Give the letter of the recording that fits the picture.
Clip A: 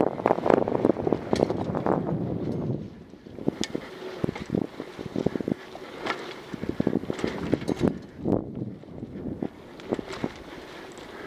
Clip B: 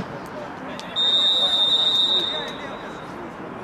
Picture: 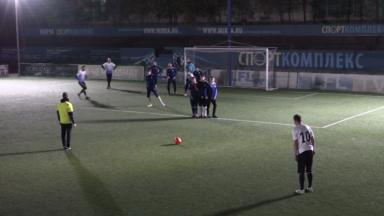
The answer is B